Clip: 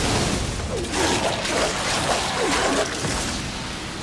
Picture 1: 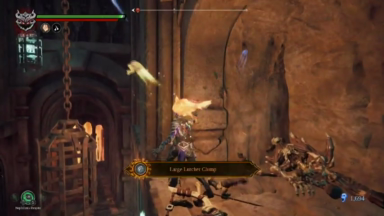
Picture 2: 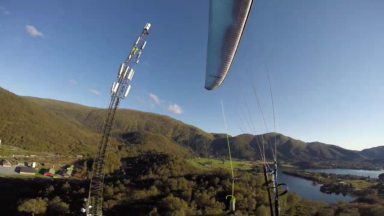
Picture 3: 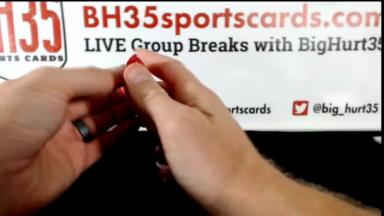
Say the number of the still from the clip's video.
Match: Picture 1